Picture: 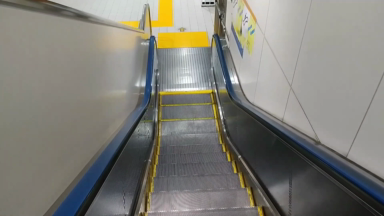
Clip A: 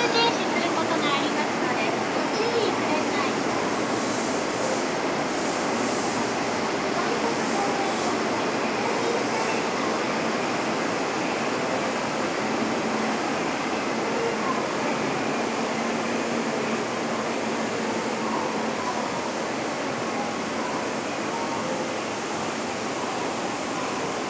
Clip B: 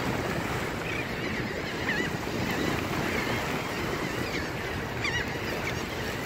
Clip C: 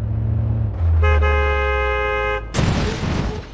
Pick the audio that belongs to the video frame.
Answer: A